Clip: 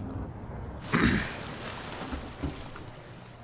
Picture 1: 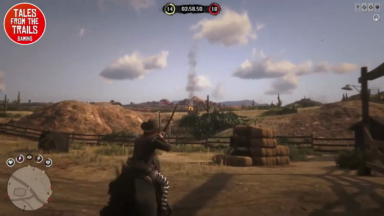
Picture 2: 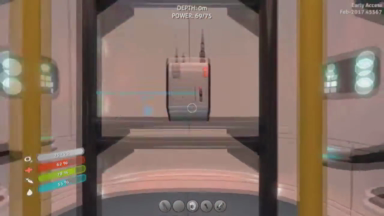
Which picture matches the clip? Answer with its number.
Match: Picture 2